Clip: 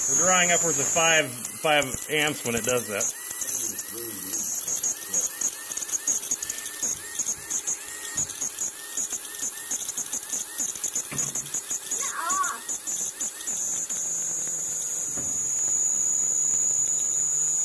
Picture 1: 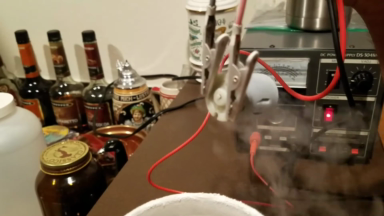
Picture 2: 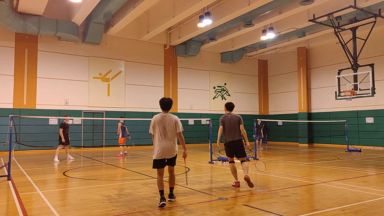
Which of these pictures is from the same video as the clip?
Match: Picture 1